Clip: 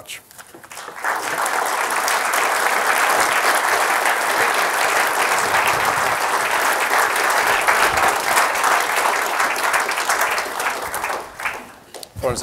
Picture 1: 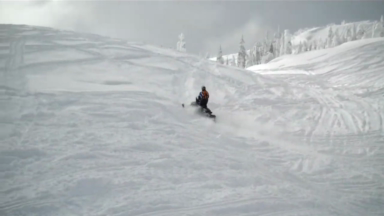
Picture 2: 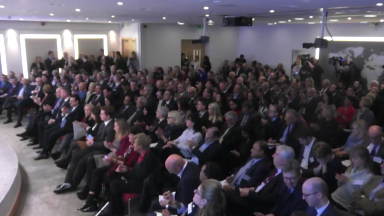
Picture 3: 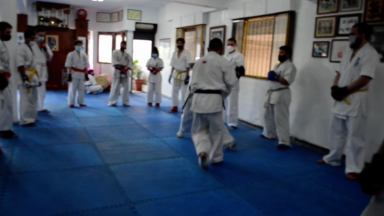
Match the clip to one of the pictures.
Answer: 2